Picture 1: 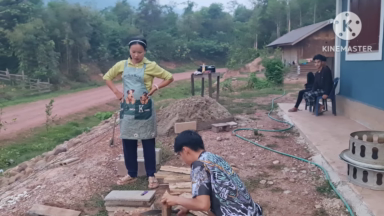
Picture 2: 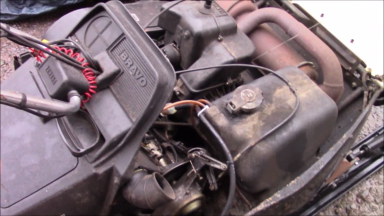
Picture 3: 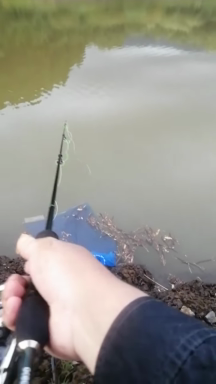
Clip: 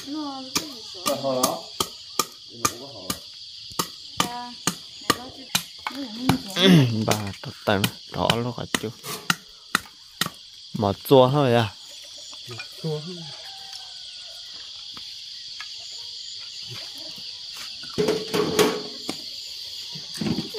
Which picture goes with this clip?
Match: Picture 1